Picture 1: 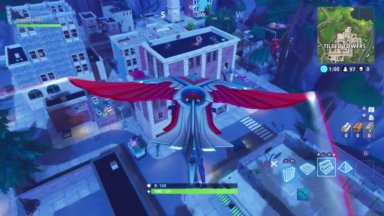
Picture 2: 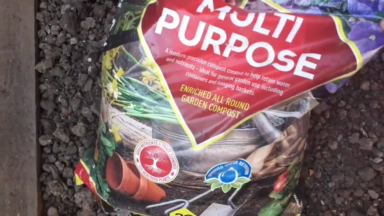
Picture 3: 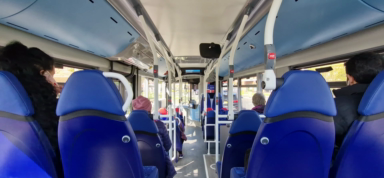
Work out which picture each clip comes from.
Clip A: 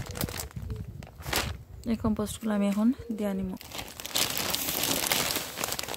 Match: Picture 2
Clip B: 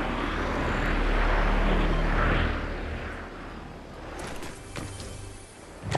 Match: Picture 1